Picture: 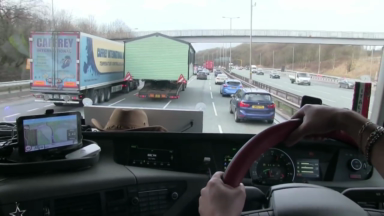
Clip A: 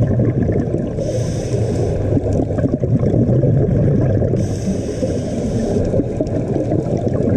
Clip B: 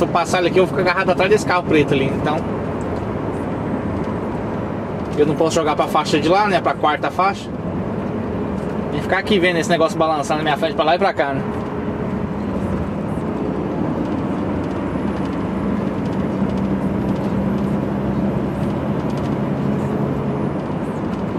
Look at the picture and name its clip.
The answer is B